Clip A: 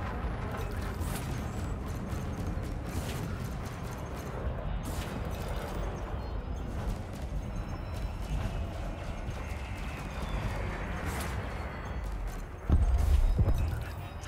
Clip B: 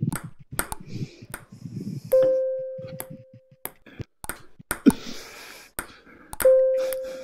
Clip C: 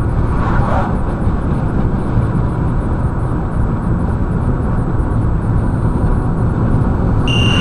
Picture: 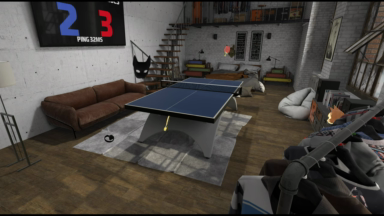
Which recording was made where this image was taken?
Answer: B